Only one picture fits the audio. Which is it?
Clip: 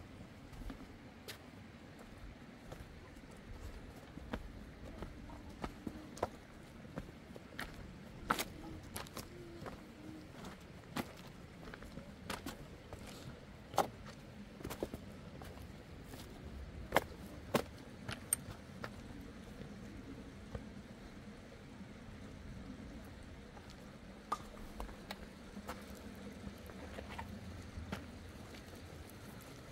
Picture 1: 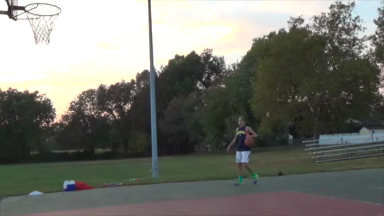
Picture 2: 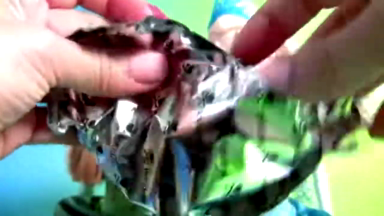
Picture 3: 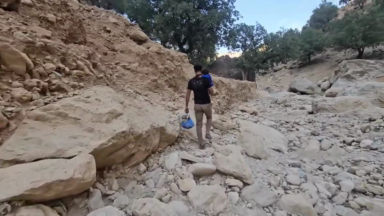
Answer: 3